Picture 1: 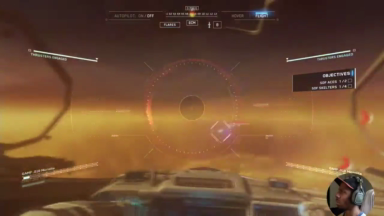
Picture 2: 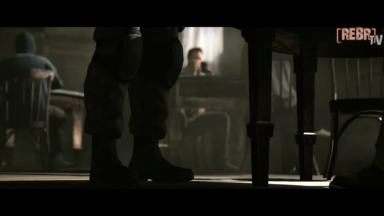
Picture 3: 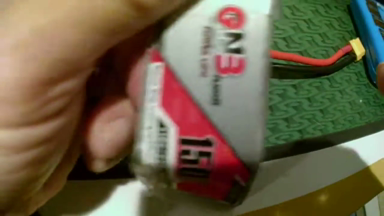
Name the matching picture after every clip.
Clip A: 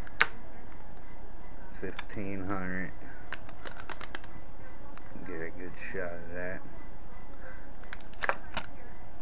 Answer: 3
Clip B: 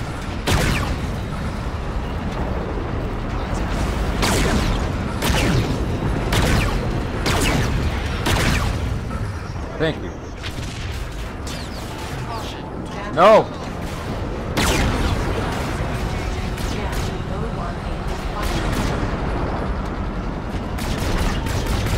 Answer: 1